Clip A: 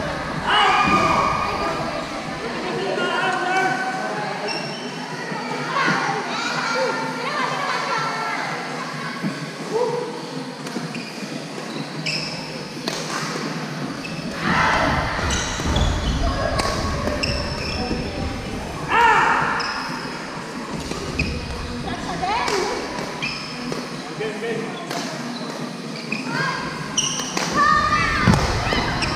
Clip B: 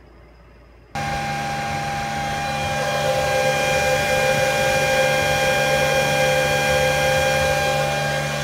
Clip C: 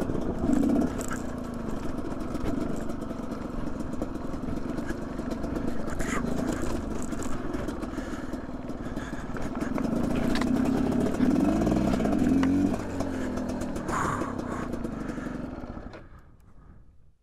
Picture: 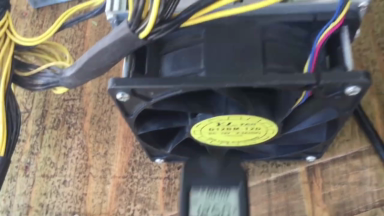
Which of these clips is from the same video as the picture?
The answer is B